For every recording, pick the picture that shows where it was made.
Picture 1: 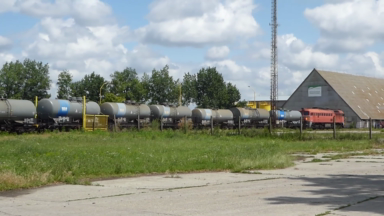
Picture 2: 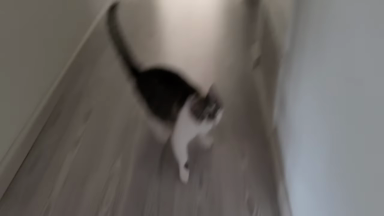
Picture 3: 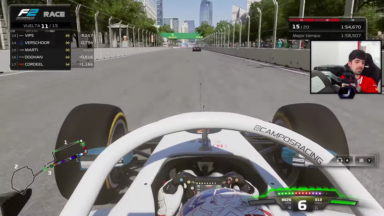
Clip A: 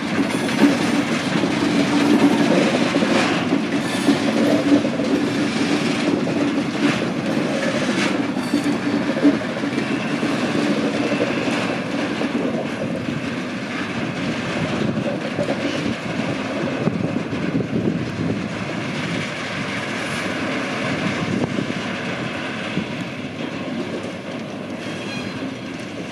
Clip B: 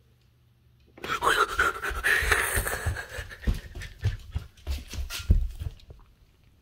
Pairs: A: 1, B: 2